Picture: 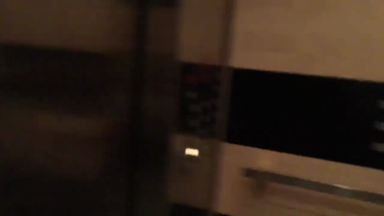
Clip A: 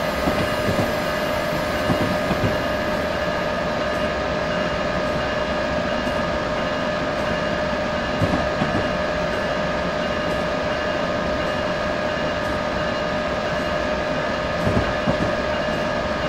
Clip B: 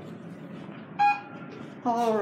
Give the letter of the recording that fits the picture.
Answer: B